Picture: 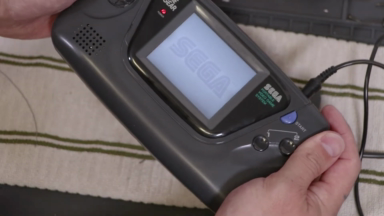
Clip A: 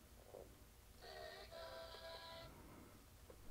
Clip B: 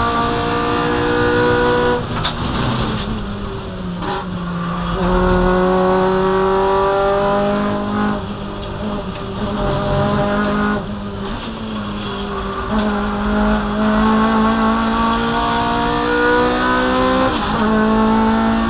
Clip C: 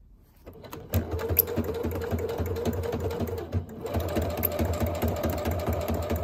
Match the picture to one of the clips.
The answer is A